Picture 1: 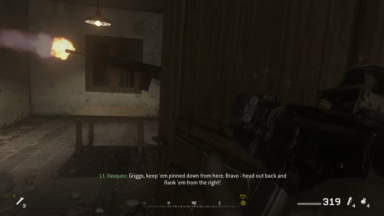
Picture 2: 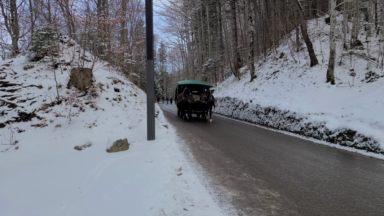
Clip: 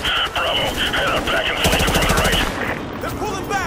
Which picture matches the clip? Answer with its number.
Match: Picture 1